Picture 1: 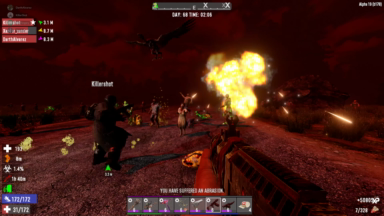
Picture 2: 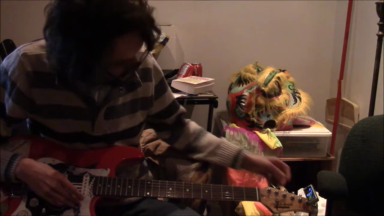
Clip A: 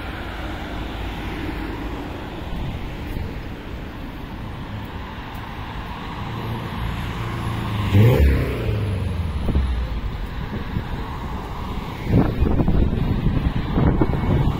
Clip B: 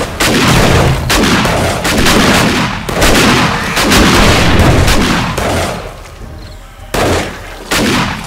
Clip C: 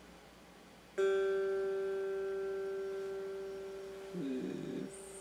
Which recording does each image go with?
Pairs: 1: B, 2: C